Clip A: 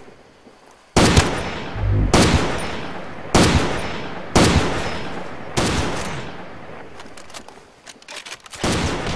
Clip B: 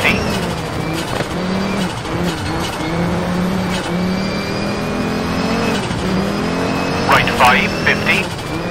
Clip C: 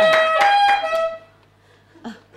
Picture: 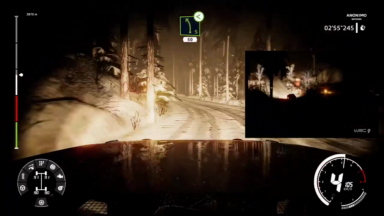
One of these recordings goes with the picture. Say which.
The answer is B